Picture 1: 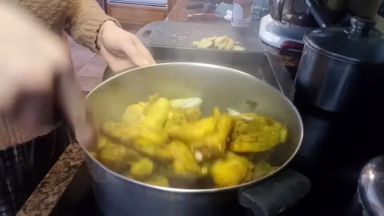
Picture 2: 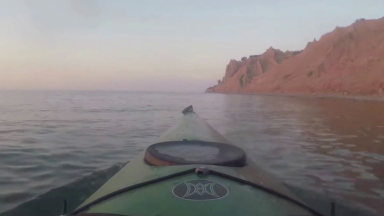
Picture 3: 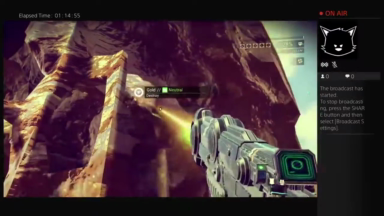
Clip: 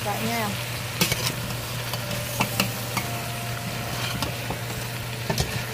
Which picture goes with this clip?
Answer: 1